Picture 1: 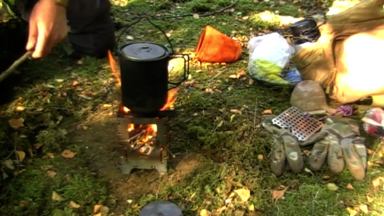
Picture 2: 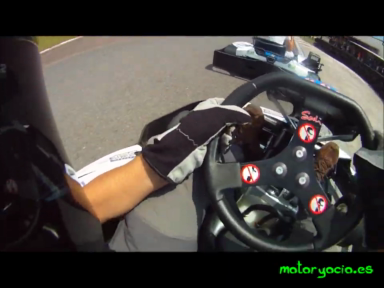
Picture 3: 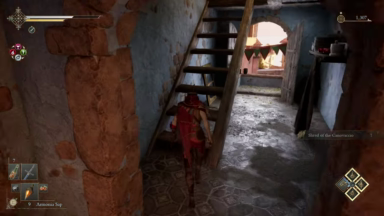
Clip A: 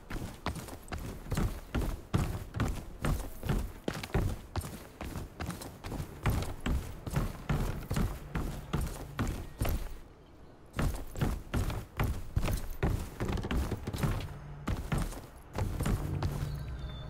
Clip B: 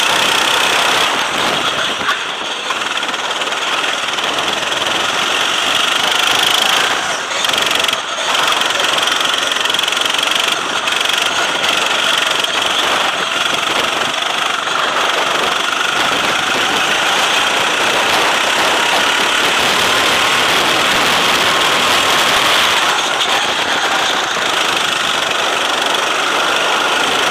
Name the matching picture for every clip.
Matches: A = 3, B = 2